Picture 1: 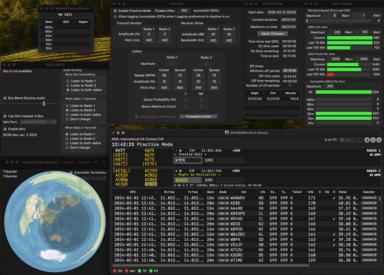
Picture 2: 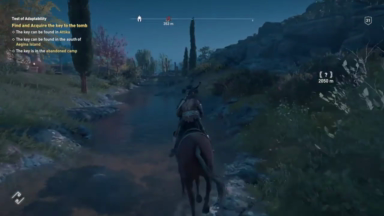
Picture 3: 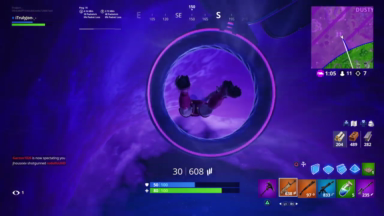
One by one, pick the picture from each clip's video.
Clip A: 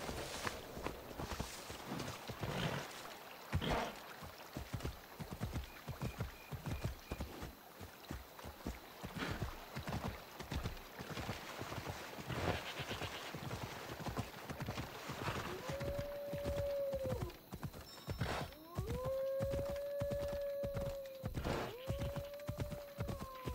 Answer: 2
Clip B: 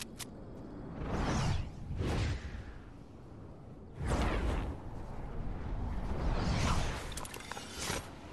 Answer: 3